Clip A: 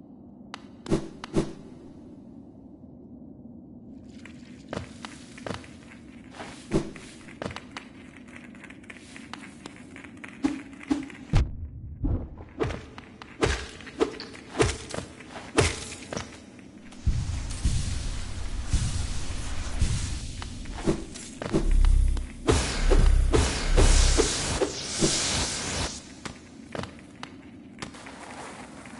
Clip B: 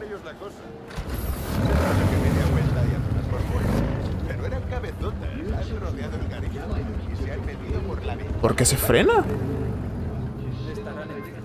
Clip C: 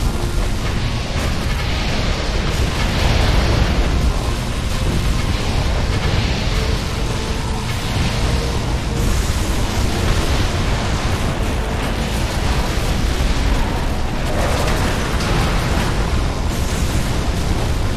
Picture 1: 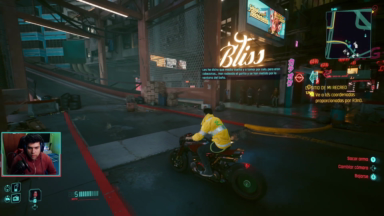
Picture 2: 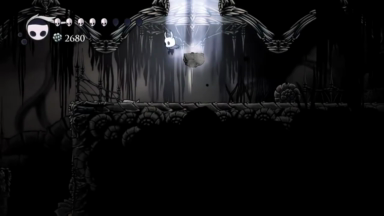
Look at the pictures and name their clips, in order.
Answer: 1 B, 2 A